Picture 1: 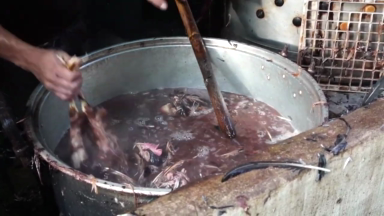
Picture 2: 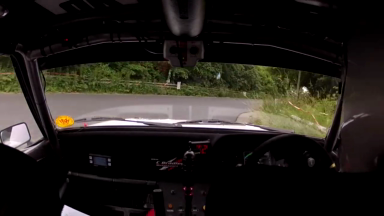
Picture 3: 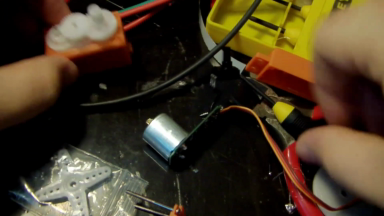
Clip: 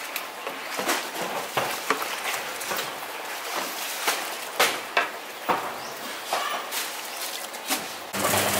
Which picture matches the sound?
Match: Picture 1